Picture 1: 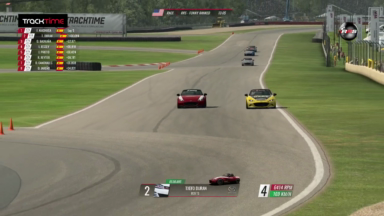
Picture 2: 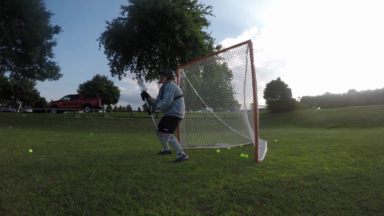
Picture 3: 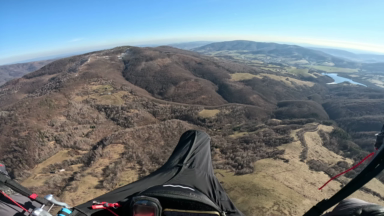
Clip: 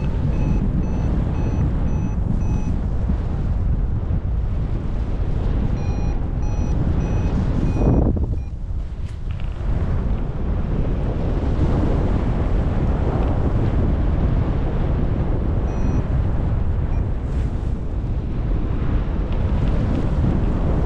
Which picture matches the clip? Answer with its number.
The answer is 3